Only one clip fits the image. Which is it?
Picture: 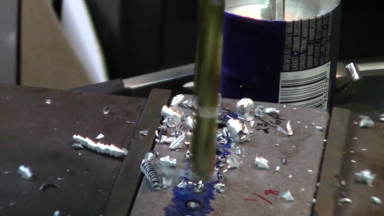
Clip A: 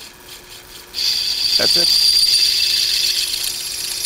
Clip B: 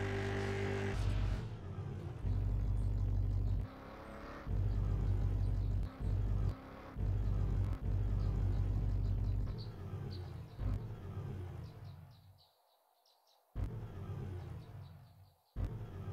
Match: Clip A